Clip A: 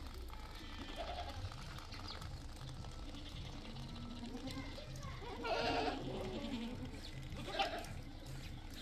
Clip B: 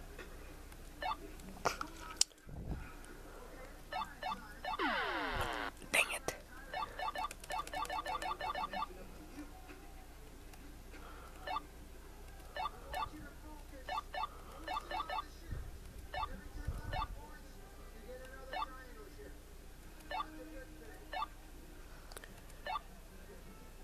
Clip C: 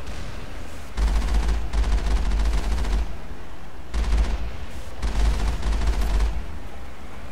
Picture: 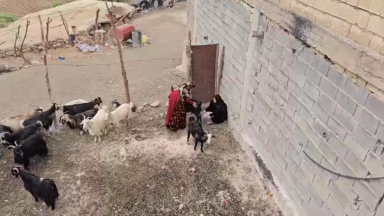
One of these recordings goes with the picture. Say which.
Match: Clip A